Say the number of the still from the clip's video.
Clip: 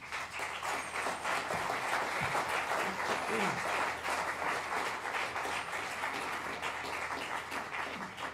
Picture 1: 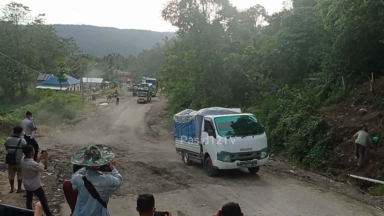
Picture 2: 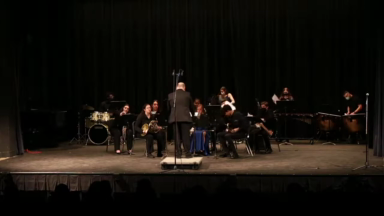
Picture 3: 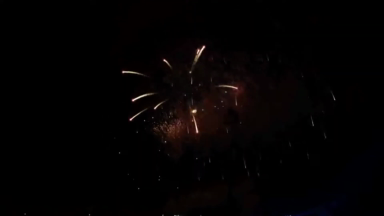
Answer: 2